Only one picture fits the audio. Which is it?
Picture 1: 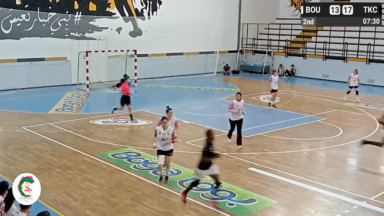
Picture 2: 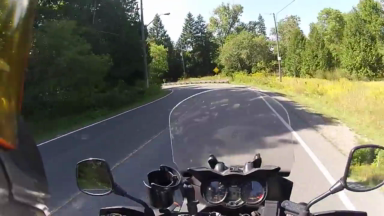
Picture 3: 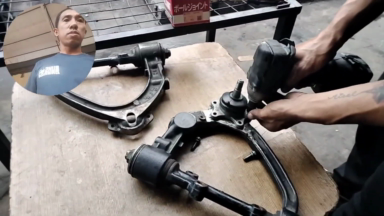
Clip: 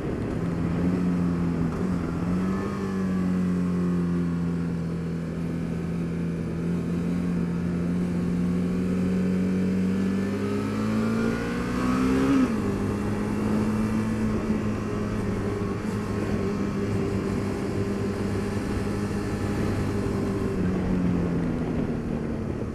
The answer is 2